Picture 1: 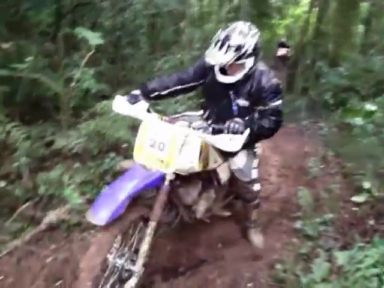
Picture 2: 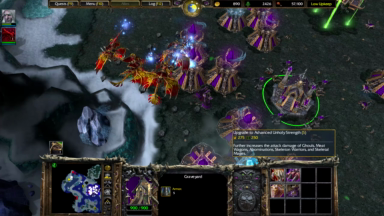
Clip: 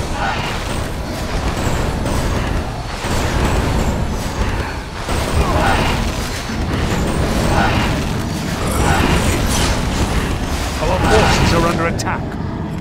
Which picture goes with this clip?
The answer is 2